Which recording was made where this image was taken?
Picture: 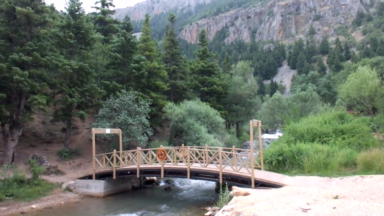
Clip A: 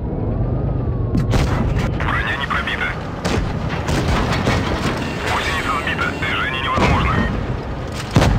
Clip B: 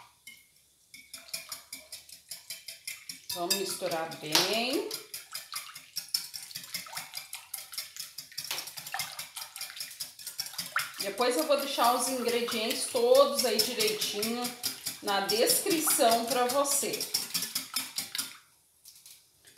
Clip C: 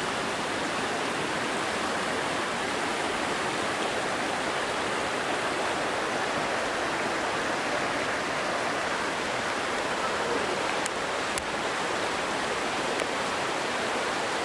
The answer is C